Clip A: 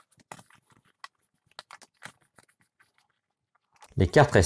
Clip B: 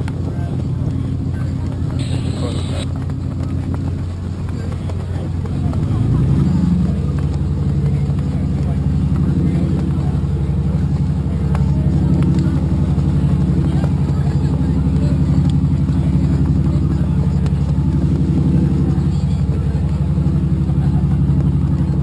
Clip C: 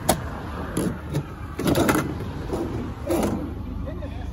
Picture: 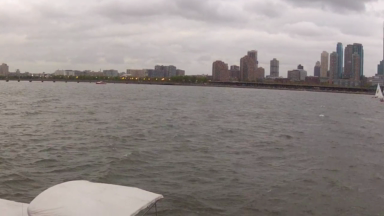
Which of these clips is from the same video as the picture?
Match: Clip B